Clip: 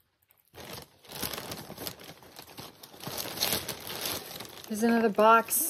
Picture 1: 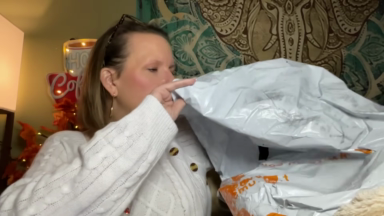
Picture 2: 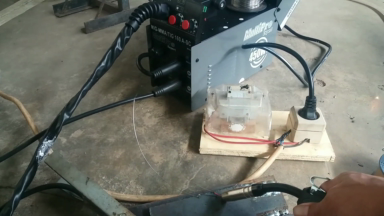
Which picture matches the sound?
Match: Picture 1